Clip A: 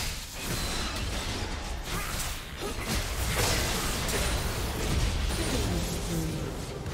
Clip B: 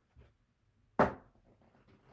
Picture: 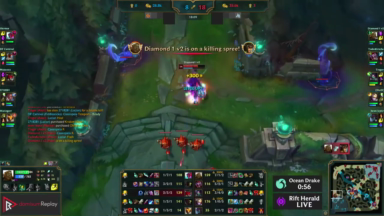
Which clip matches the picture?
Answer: A